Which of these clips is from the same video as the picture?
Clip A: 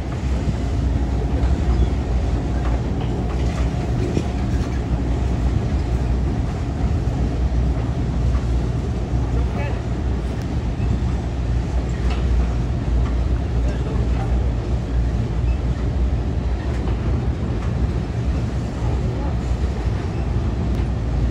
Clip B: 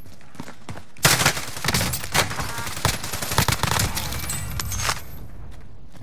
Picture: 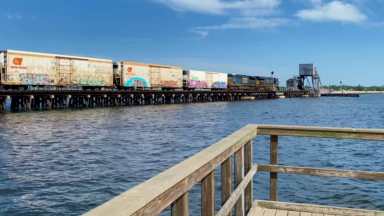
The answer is A